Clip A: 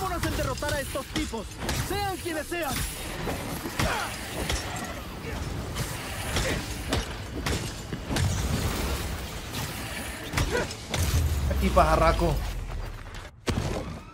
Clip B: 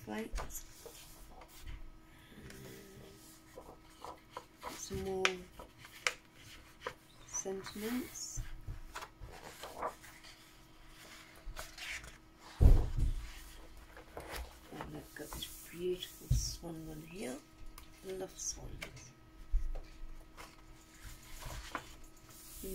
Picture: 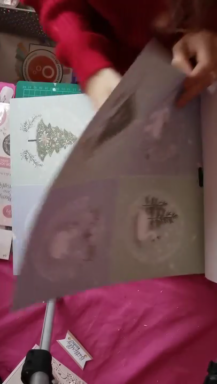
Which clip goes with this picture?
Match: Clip B